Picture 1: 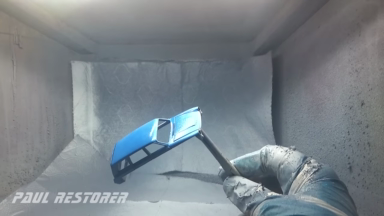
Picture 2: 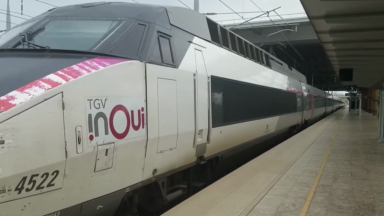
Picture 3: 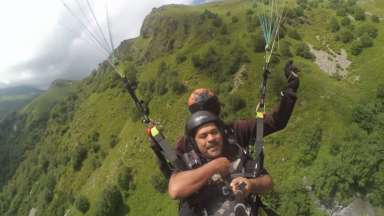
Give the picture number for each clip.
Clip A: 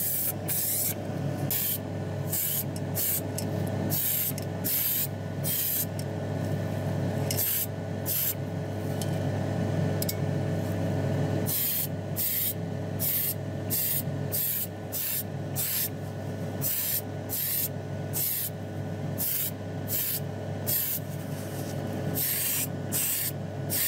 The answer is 1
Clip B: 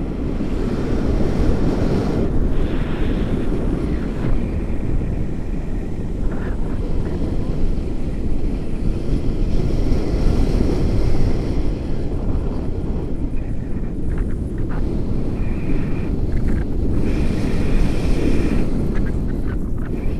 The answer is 3